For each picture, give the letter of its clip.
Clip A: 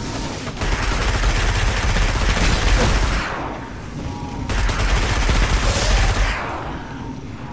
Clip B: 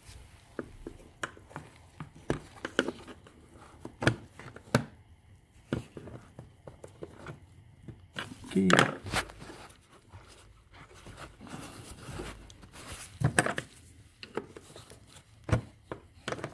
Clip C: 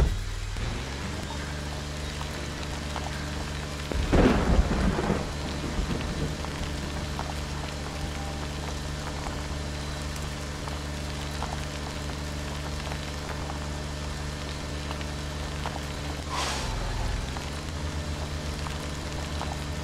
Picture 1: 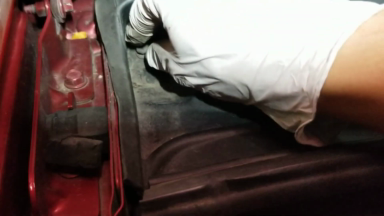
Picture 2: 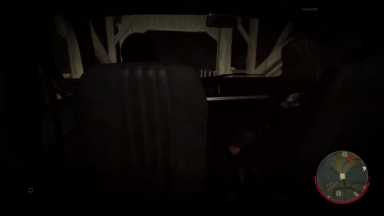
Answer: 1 B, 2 C